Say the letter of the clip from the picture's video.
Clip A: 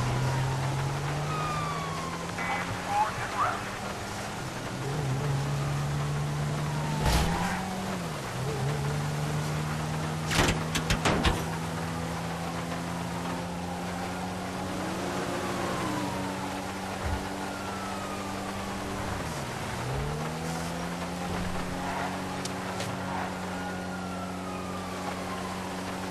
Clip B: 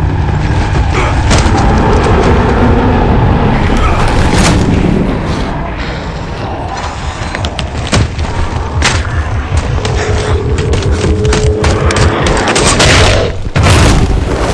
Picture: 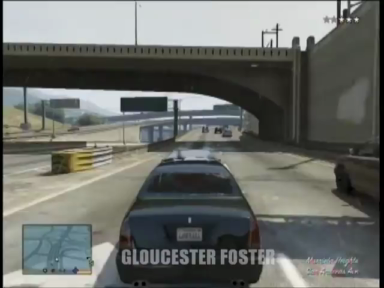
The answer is A